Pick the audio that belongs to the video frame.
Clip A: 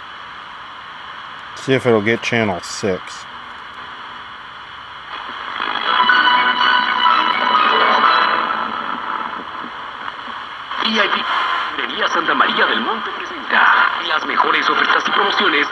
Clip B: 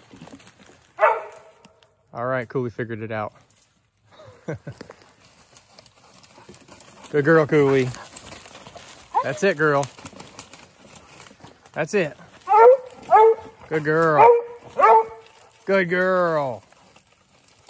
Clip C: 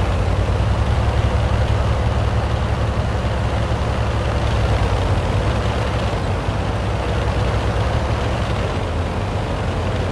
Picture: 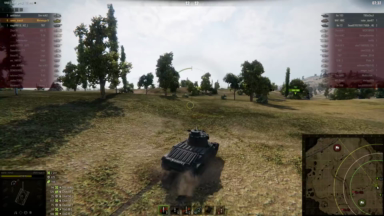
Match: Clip C